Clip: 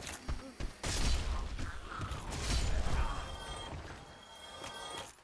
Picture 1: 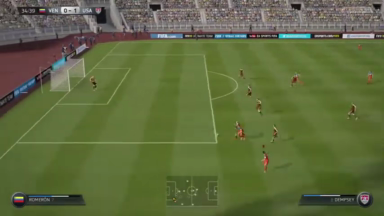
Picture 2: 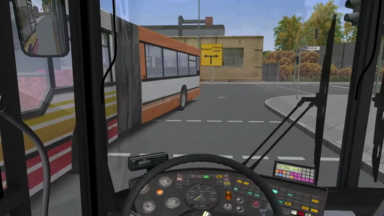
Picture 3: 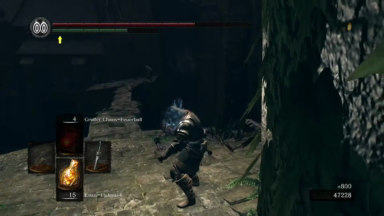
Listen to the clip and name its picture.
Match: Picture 3